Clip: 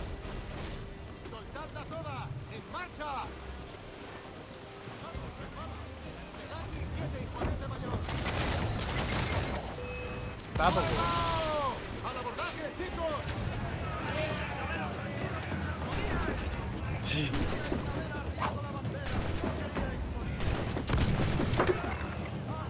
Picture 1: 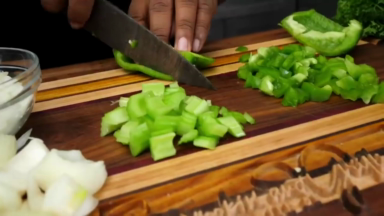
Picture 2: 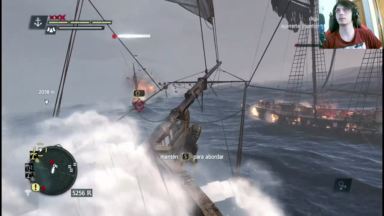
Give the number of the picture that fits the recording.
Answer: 2